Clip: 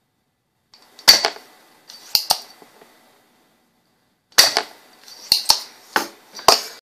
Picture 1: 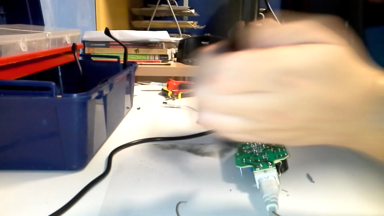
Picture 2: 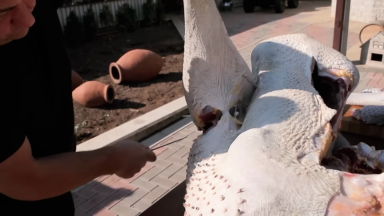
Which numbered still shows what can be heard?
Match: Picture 1